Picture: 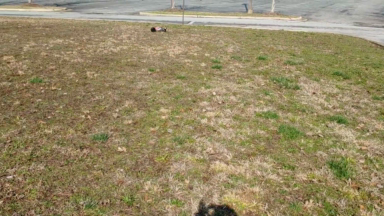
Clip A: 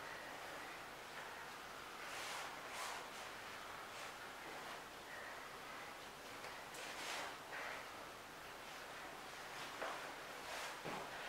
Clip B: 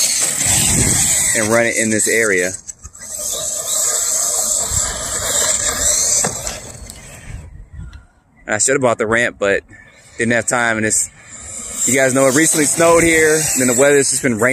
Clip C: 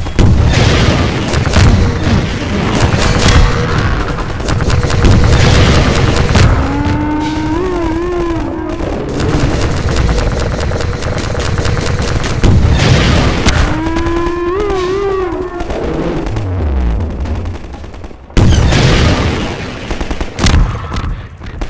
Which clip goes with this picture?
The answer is B